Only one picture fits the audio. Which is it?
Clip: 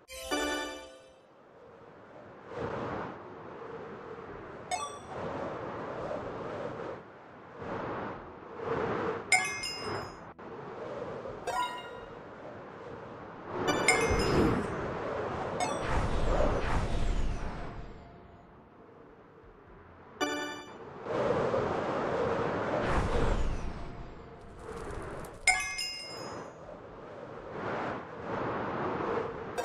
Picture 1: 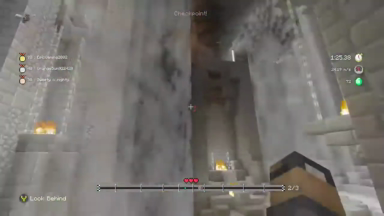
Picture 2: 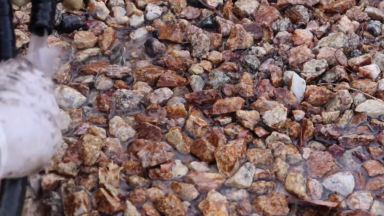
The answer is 1